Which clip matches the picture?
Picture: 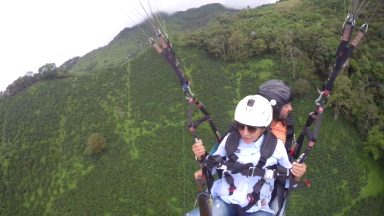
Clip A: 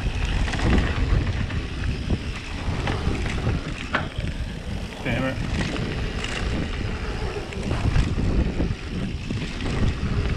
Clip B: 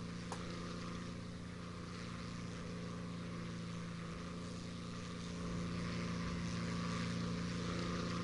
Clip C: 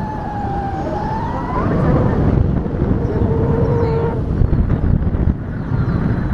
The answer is C